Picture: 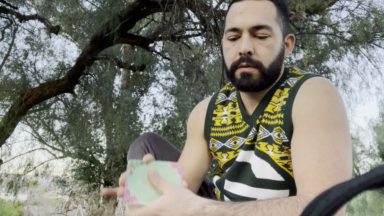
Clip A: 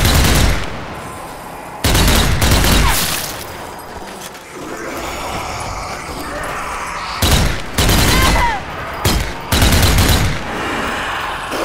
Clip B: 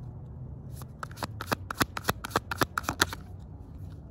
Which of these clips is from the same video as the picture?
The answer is B